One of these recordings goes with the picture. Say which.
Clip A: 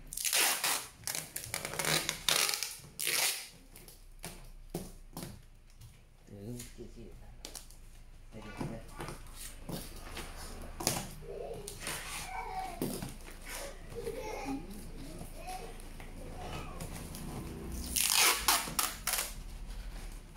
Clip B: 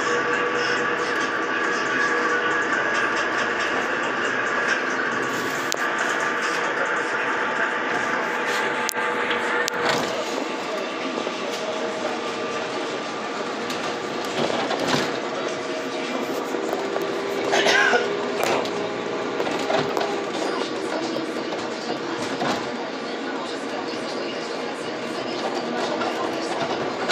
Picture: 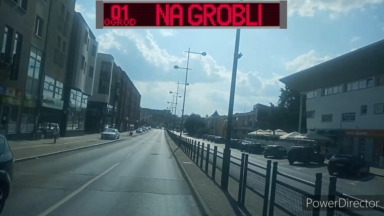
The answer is B